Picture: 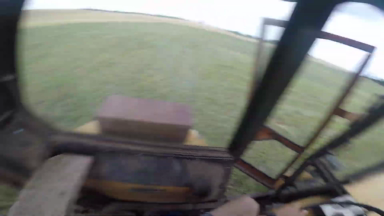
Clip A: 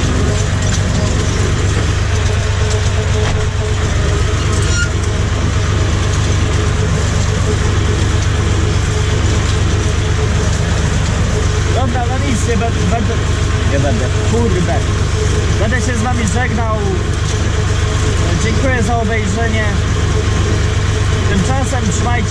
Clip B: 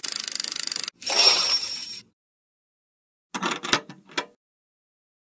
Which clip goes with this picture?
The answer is A